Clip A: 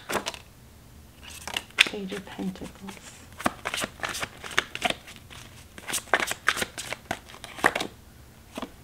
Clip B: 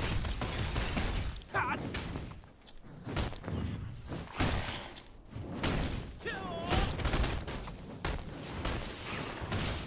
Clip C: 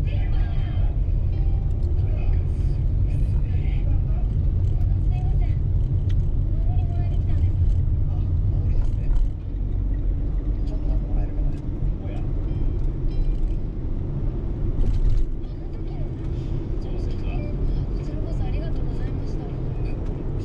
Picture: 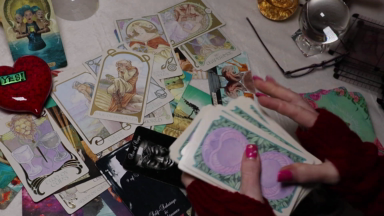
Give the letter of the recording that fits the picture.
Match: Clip A